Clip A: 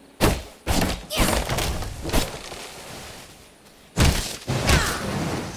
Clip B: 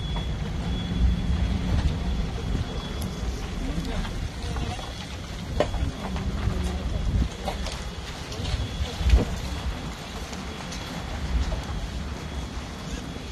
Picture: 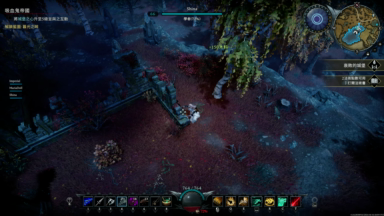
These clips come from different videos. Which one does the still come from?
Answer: A